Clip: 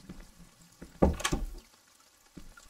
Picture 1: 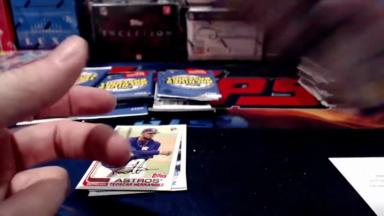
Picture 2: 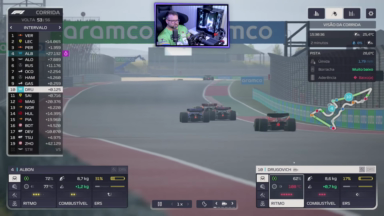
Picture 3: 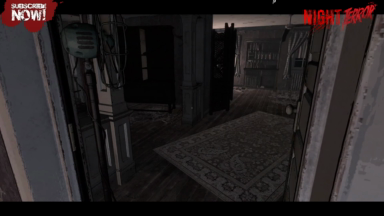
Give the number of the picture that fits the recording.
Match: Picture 3